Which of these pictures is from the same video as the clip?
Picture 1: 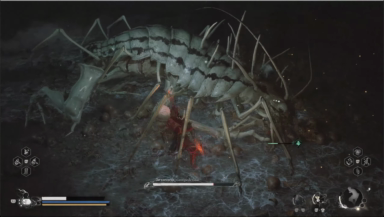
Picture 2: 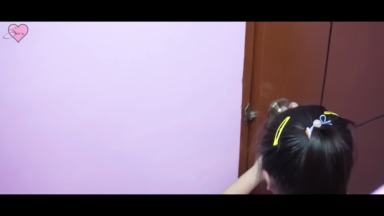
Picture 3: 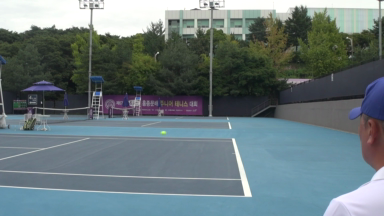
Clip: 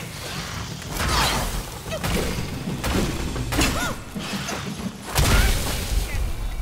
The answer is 1